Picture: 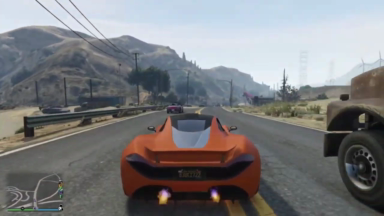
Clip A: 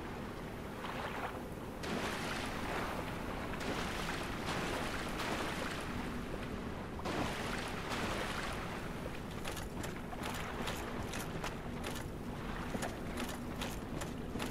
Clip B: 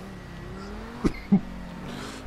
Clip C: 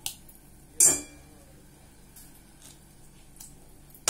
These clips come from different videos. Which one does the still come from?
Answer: B